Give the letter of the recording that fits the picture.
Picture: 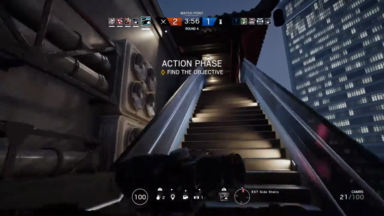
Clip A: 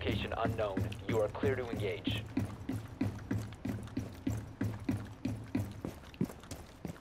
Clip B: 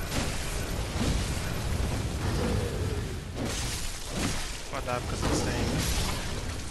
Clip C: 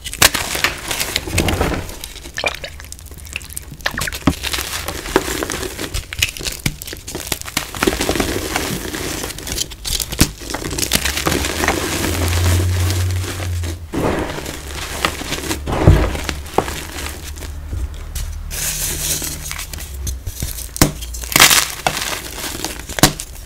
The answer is A